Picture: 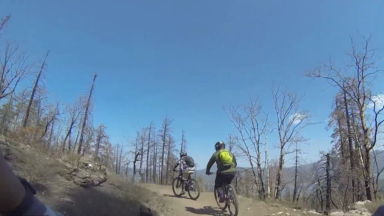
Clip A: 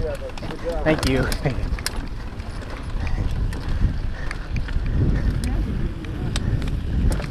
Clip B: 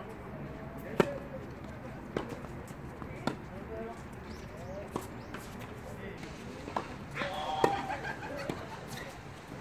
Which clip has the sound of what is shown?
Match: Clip A